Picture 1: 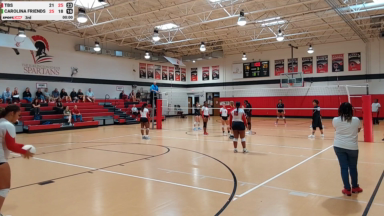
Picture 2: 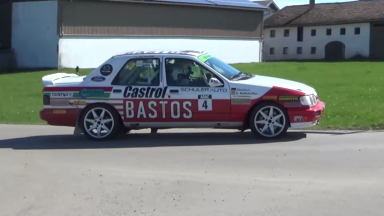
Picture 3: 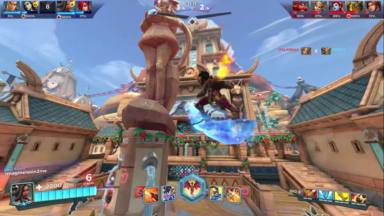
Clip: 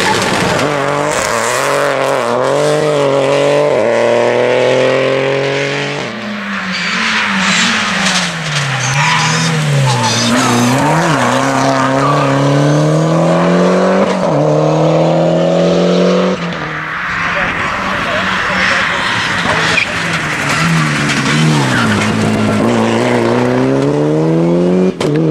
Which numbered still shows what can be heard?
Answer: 2